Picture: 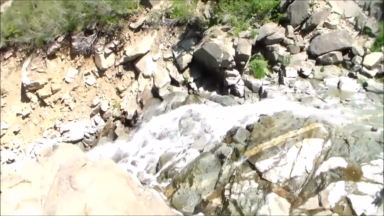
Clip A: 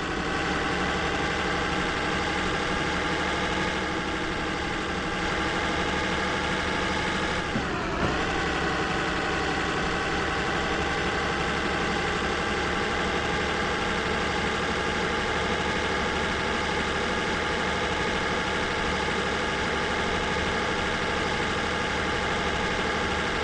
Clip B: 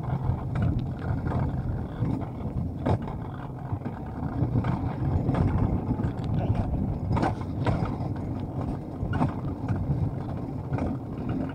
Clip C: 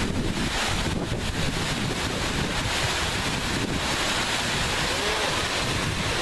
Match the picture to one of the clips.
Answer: C